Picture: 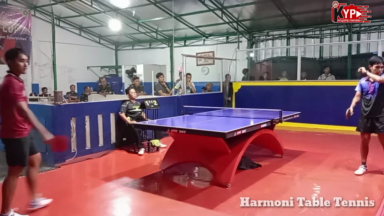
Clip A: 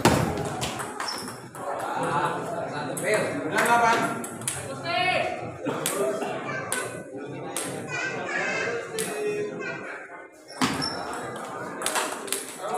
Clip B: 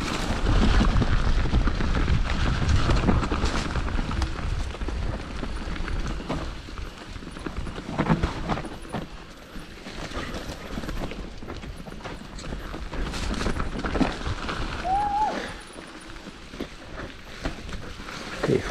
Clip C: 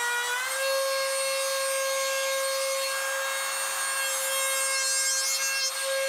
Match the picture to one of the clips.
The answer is A